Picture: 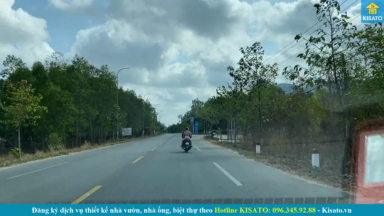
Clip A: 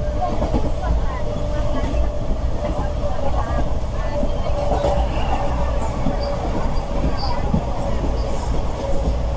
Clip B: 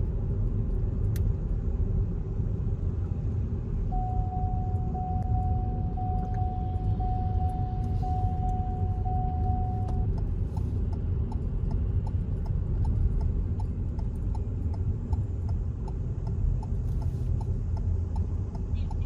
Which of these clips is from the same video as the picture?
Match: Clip B